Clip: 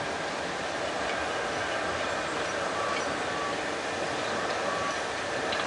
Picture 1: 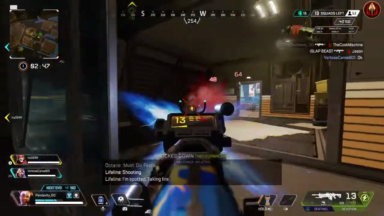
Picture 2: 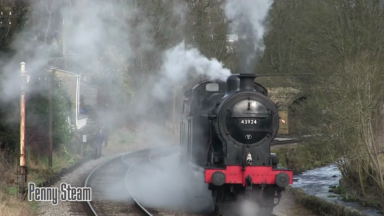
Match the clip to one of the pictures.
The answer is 2